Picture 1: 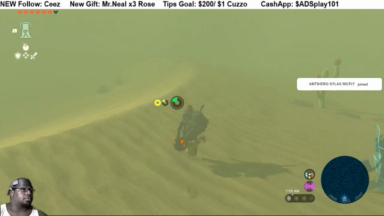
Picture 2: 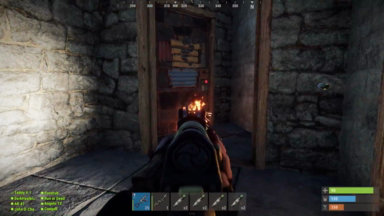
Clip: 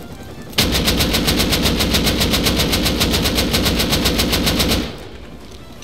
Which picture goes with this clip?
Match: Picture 2